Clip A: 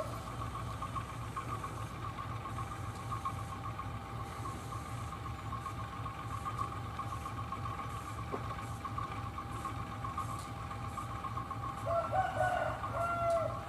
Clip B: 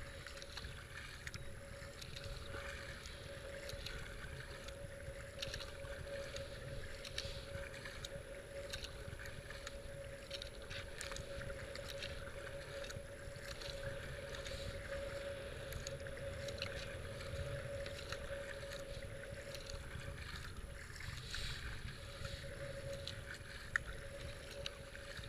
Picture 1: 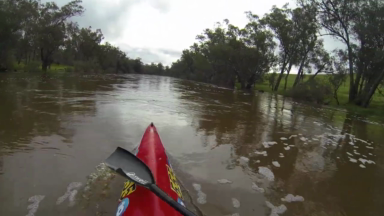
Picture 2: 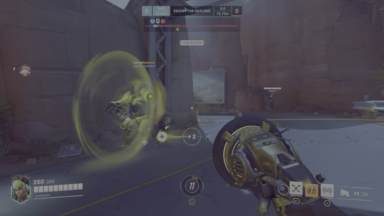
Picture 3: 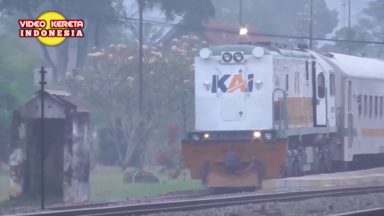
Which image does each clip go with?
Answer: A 3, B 1